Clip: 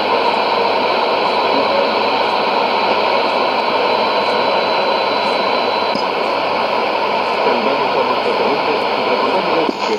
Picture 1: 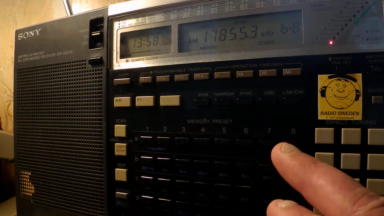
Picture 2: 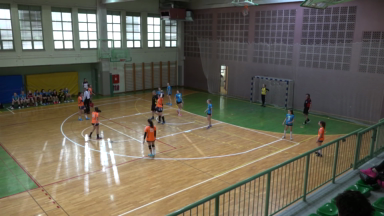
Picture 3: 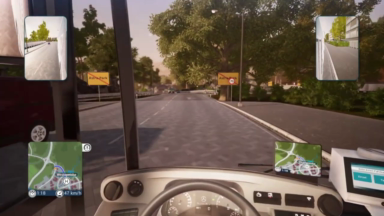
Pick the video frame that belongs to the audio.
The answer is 1